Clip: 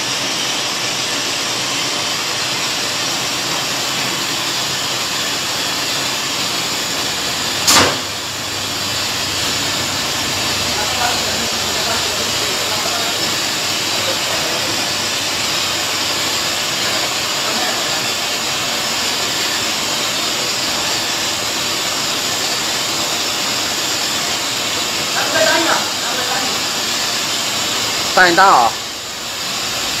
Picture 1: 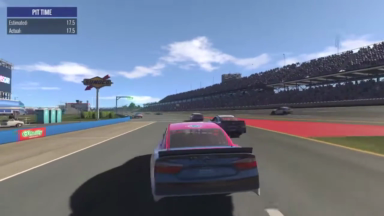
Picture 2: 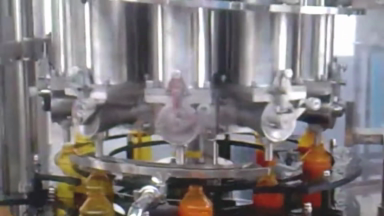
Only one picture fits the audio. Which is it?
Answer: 2